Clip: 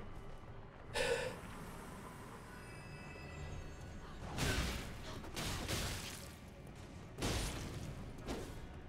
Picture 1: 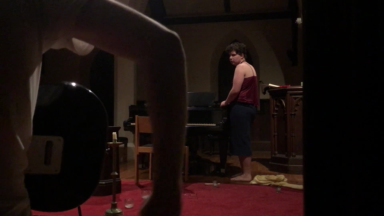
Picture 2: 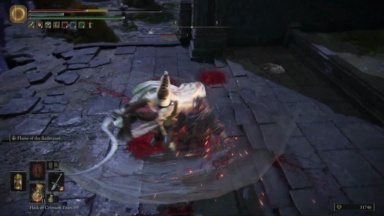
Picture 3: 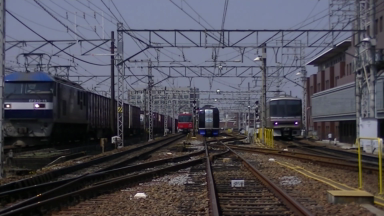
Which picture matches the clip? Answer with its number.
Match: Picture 2